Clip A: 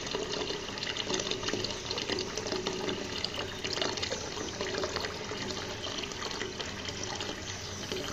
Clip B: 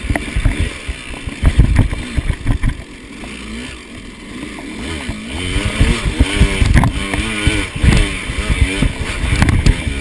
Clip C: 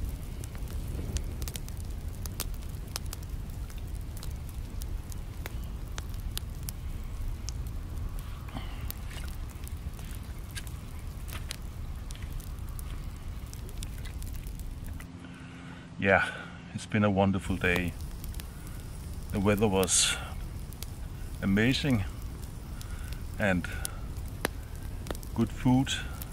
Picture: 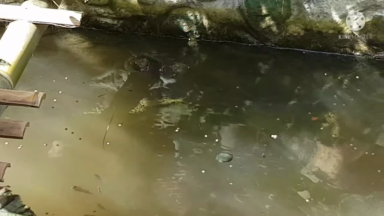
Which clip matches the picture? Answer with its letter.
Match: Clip A